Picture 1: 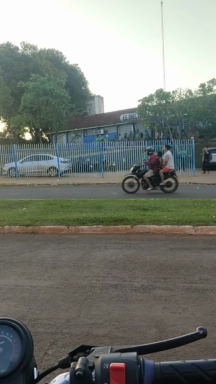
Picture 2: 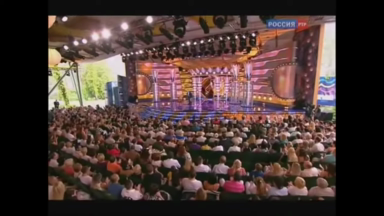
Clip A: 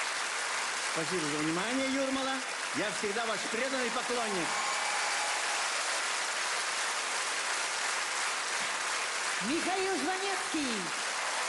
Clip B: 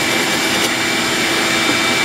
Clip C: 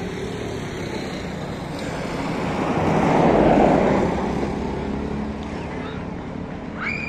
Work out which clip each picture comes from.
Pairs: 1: C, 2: A